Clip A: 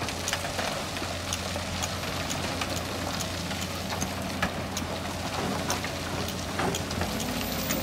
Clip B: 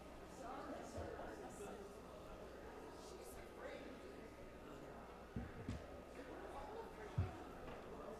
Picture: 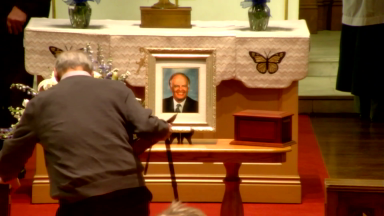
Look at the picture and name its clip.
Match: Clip B